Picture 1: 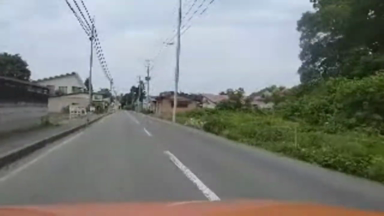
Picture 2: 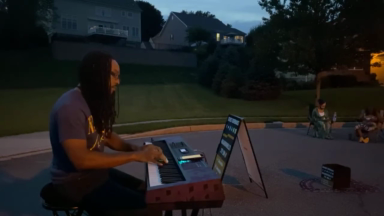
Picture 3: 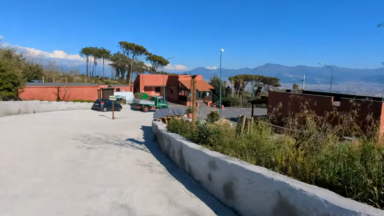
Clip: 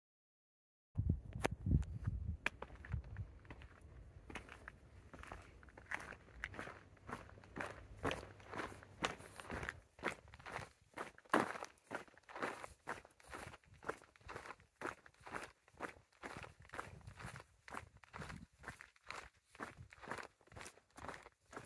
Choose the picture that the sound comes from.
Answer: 3